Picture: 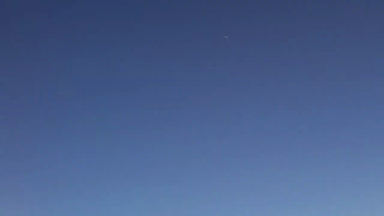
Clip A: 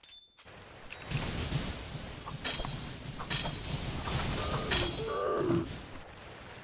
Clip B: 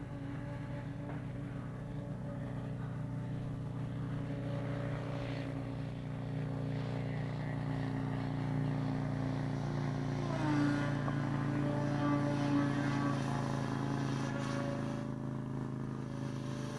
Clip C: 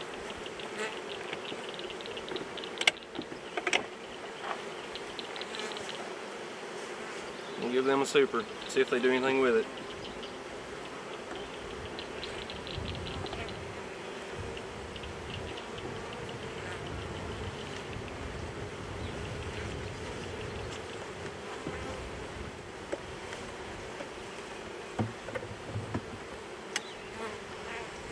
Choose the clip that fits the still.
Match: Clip B